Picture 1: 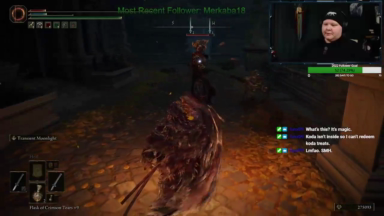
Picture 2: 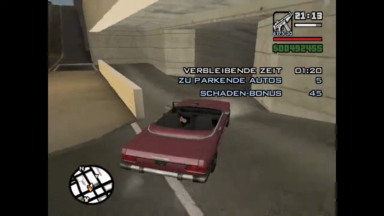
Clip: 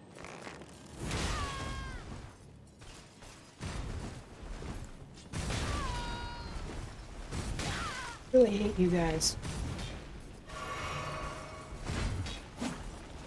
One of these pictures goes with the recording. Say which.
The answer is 1